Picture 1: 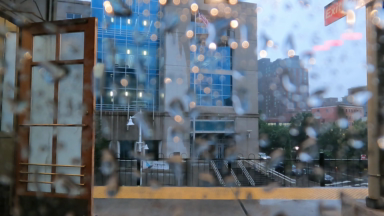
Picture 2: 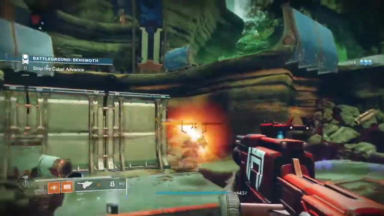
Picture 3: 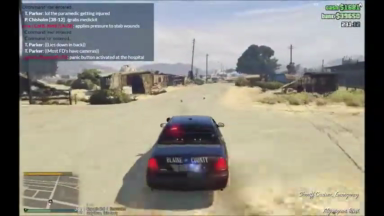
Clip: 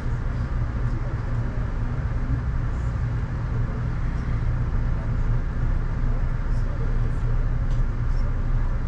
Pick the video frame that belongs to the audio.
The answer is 1